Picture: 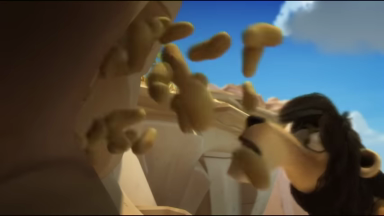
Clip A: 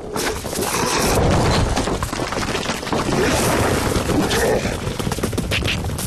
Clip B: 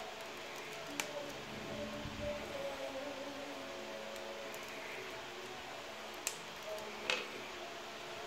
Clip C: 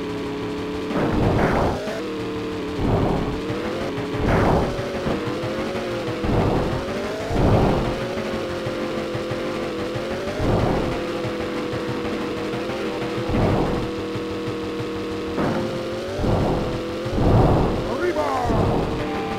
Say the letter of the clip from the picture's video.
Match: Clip A